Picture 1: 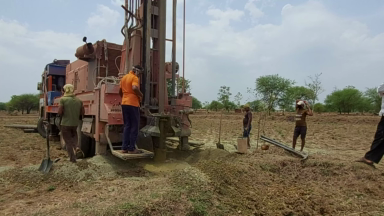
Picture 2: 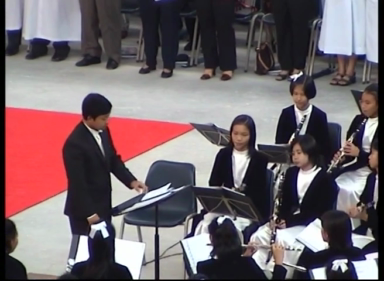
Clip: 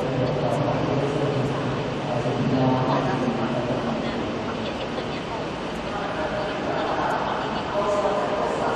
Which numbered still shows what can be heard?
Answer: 2